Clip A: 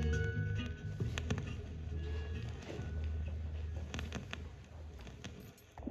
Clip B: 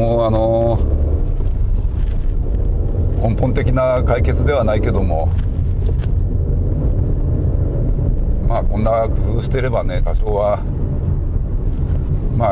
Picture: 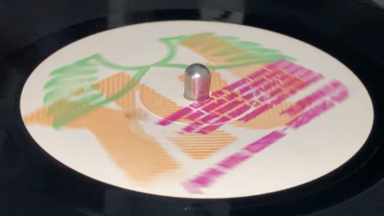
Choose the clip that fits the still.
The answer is A